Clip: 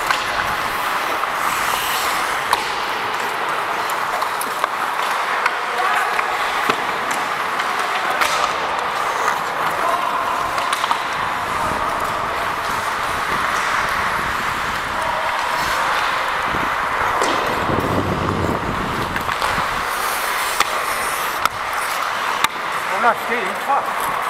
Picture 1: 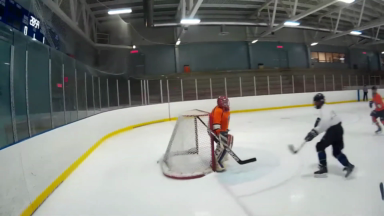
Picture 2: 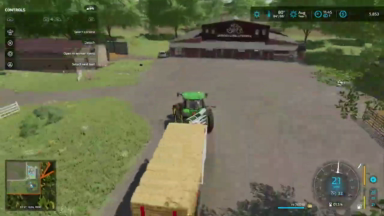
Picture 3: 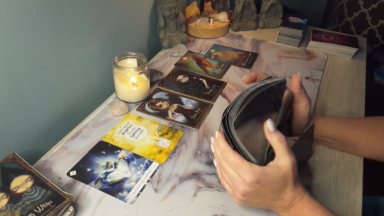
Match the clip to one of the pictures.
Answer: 1